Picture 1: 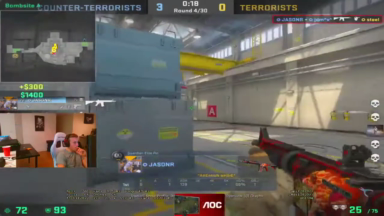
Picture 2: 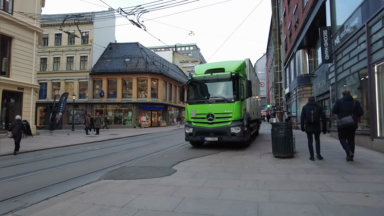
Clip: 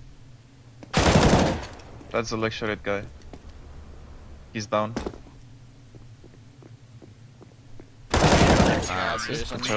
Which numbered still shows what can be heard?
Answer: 1